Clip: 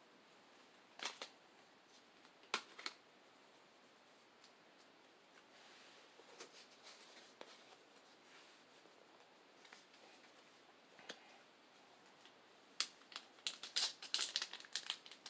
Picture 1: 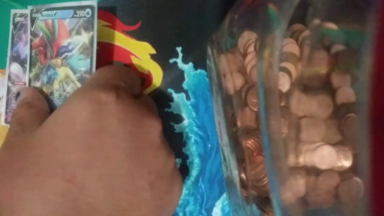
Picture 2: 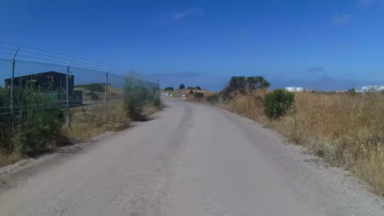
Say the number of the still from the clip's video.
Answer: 1